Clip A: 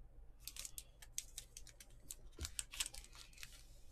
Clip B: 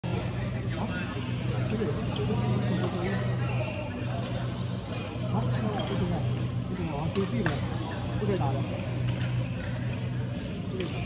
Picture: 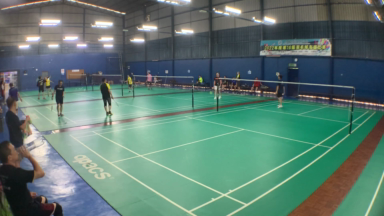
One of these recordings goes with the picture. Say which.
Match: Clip B